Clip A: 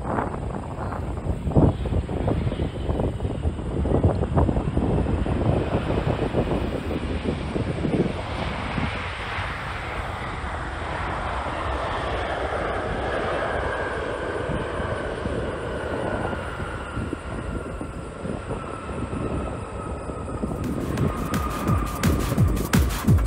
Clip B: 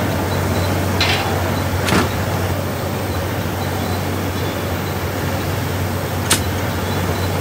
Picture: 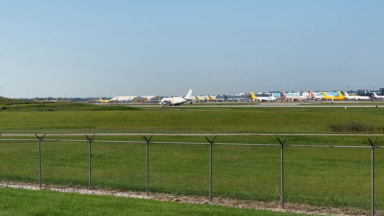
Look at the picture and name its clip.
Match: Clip A